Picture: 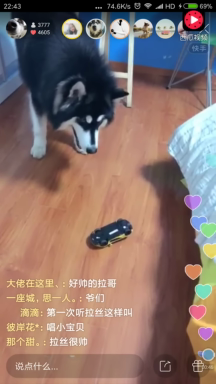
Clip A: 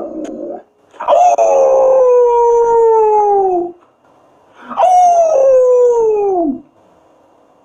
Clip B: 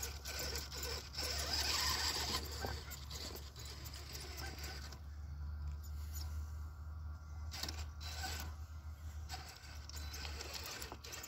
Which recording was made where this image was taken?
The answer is A